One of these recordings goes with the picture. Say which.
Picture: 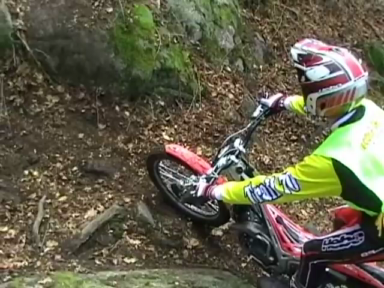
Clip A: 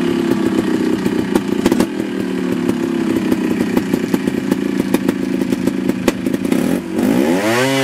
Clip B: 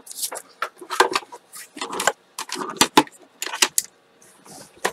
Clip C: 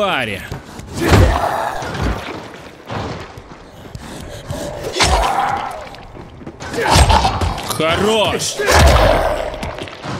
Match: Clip A